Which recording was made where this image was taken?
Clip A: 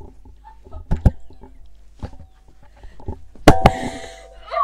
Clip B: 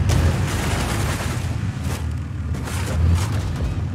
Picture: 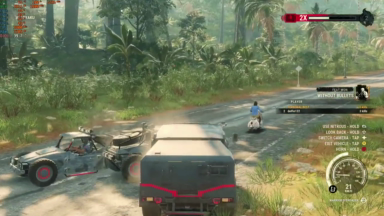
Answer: B